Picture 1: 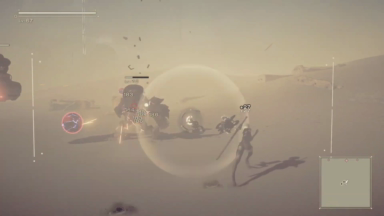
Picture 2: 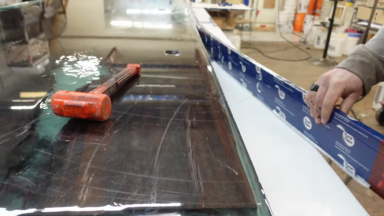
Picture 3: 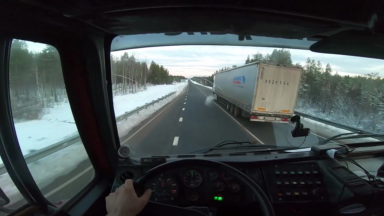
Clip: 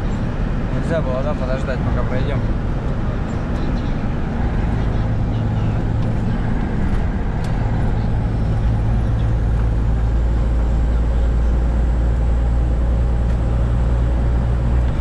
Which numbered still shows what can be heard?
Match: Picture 3